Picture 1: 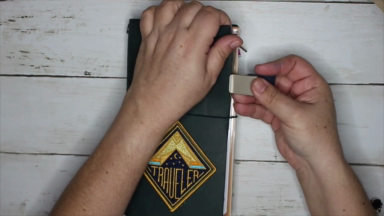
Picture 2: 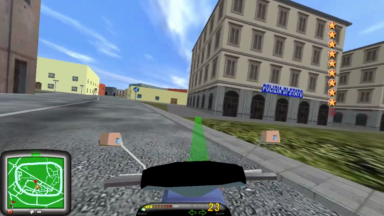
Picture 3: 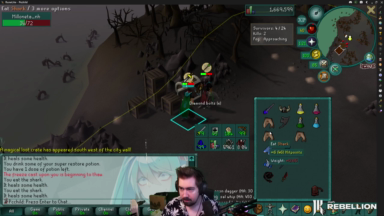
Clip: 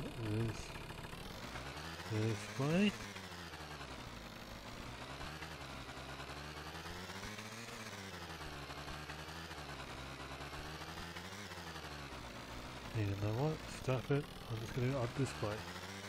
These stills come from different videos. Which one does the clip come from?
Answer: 2